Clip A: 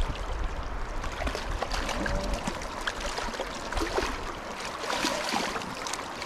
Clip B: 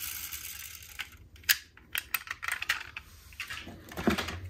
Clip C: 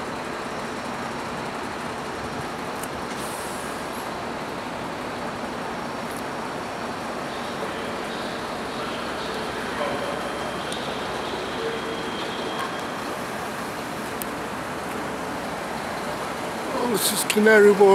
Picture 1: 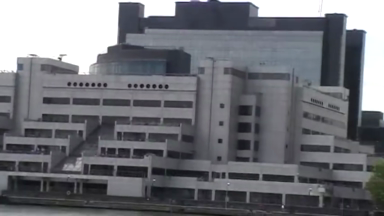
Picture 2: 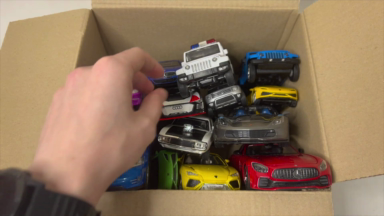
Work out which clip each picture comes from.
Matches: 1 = C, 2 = B